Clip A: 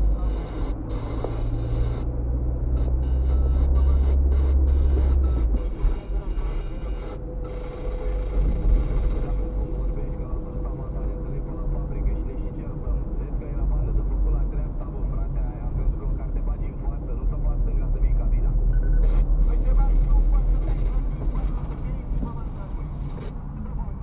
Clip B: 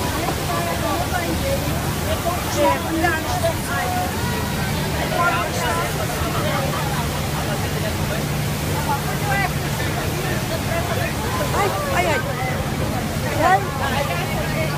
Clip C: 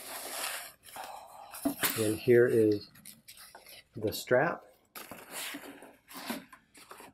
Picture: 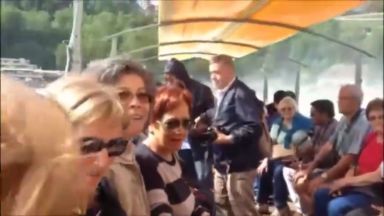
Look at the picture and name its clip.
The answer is B